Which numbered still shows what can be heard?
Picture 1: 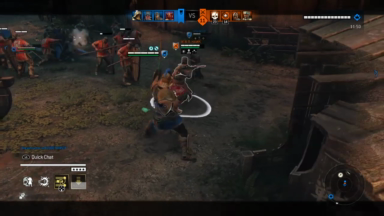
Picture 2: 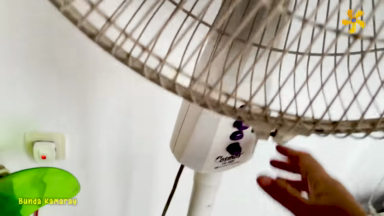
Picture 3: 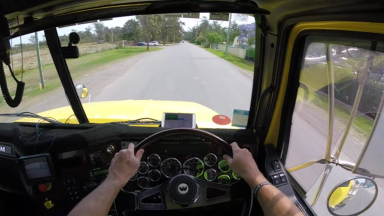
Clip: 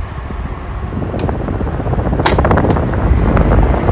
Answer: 2